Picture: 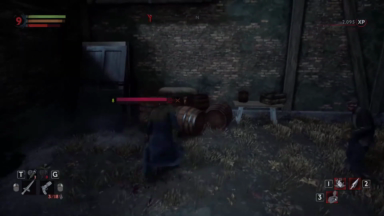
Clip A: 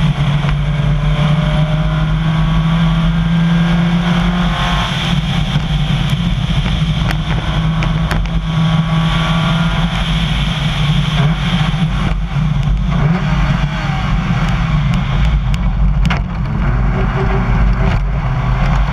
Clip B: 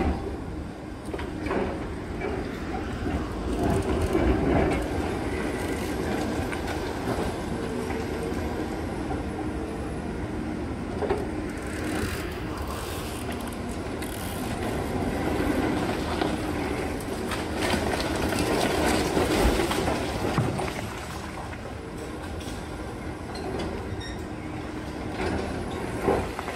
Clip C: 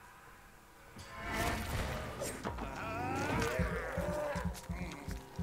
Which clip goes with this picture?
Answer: C